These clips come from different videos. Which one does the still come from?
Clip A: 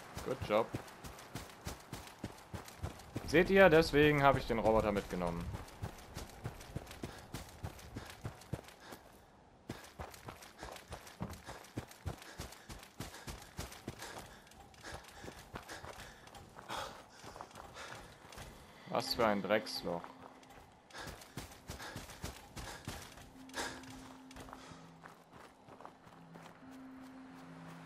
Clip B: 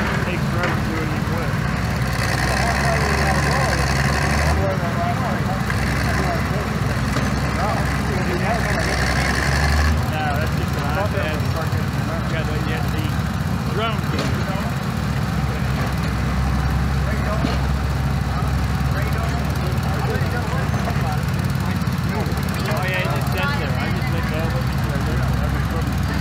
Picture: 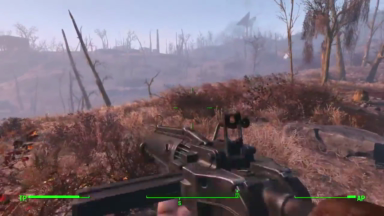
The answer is A